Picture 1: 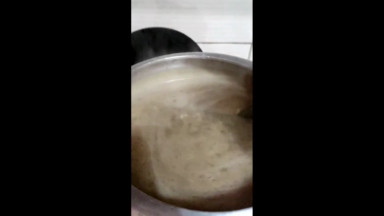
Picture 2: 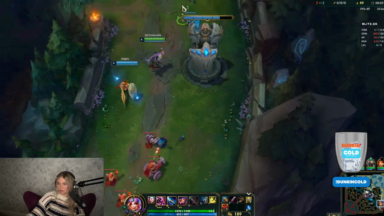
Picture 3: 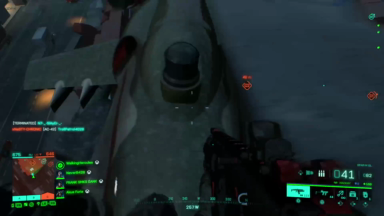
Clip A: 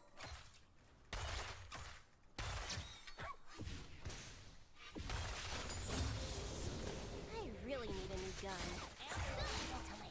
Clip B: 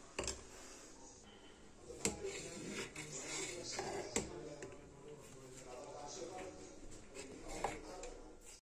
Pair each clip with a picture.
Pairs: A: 2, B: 1